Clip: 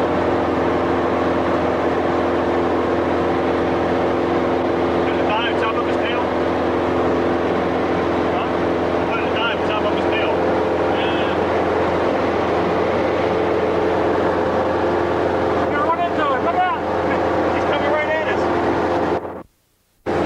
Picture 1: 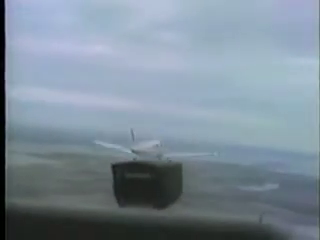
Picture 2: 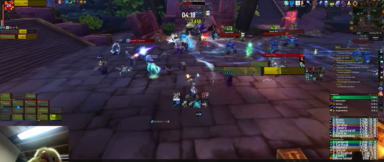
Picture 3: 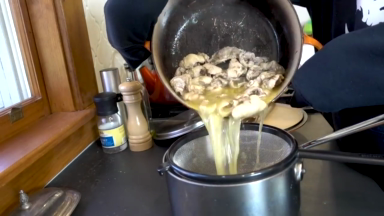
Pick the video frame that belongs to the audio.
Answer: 1